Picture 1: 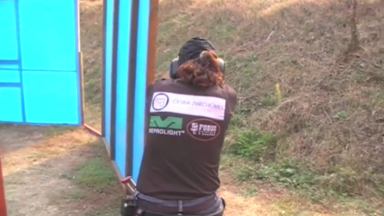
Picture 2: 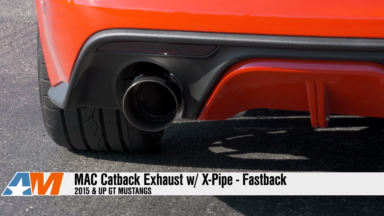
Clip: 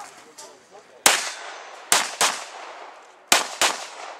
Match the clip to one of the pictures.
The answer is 1